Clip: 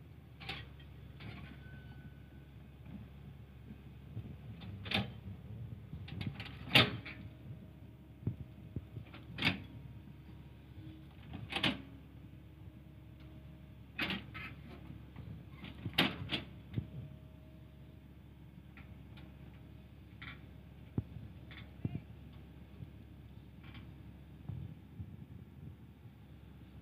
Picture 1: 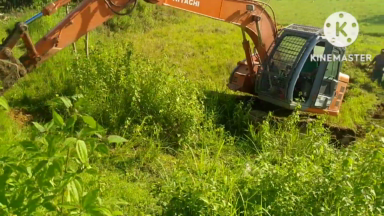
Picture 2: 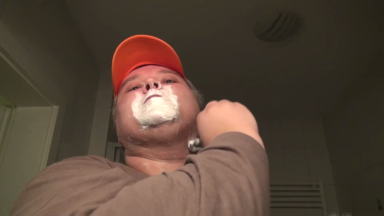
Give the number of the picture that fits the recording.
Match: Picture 1